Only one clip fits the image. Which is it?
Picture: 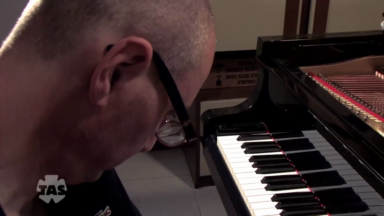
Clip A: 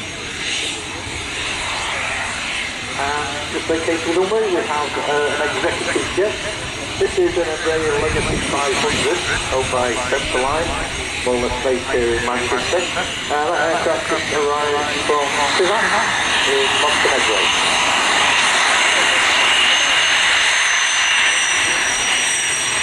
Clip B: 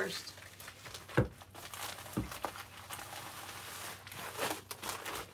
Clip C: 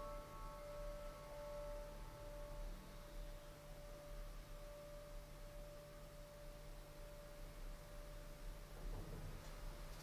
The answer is C